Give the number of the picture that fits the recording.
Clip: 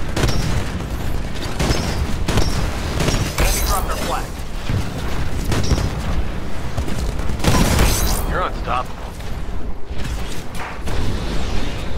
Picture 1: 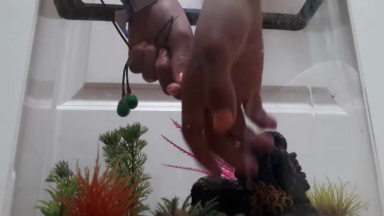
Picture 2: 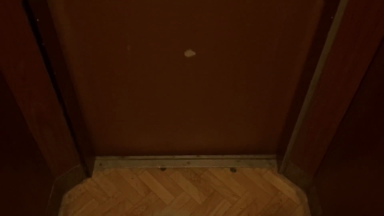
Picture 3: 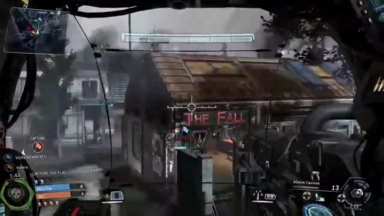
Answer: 3